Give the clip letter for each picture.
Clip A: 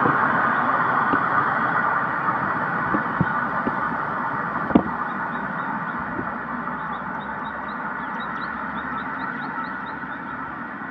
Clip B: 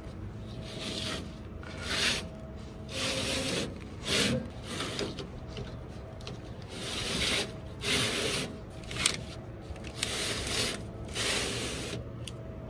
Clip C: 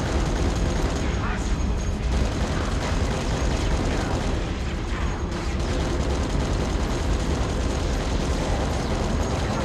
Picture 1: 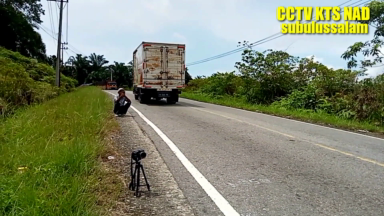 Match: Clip A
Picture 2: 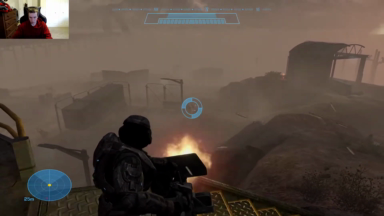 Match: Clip C